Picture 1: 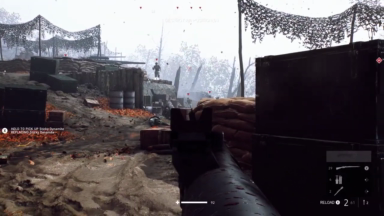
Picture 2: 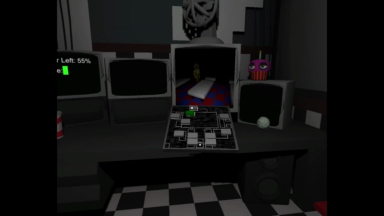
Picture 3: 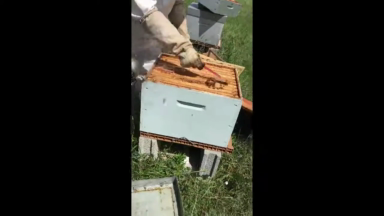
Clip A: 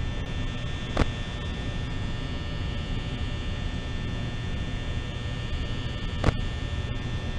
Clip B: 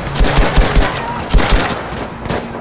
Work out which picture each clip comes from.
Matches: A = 2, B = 1